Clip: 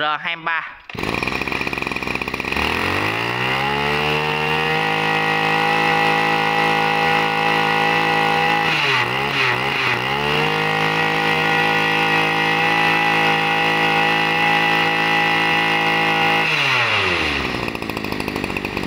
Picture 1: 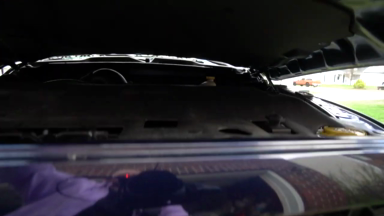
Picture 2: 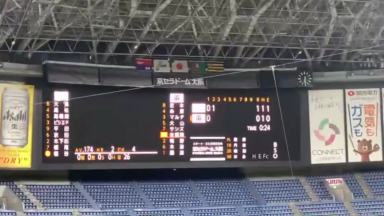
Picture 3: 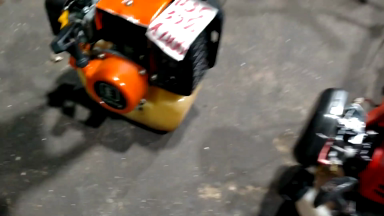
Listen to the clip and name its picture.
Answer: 3